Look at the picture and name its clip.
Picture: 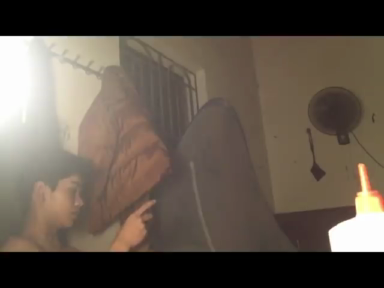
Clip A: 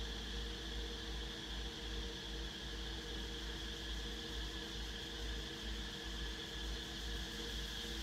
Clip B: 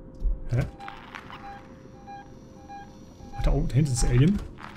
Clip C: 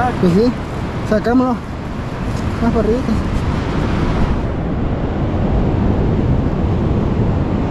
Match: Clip A